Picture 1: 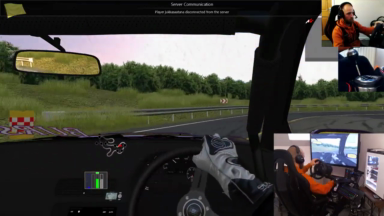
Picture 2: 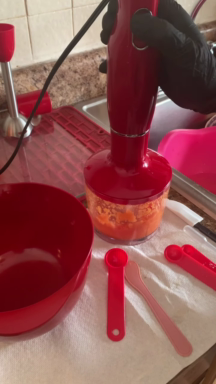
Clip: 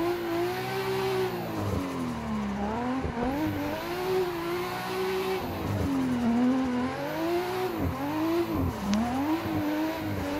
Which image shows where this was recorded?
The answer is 1